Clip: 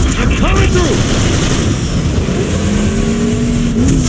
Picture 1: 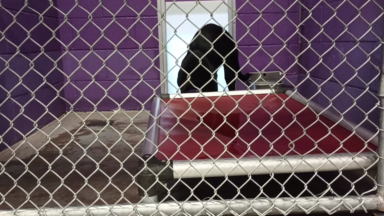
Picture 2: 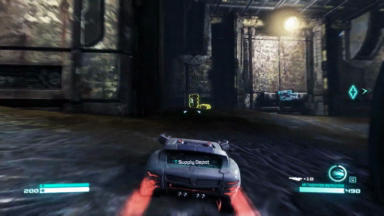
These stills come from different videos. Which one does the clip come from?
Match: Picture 2